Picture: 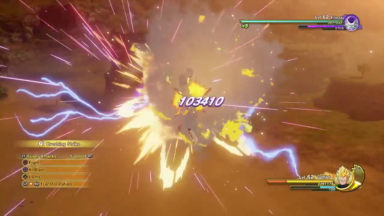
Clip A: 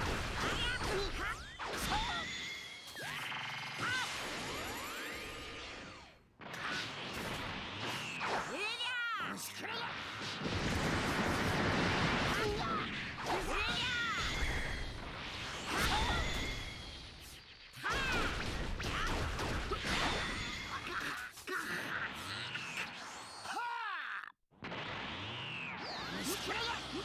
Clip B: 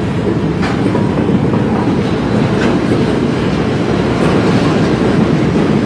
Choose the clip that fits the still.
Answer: A